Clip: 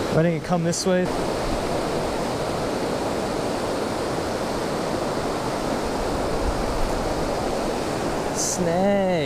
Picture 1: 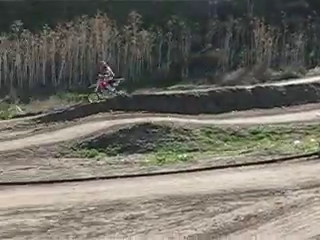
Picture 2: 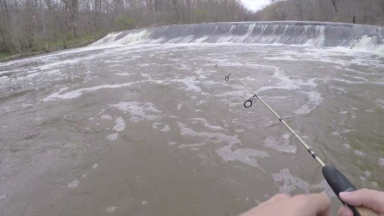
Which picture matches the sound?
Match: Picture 2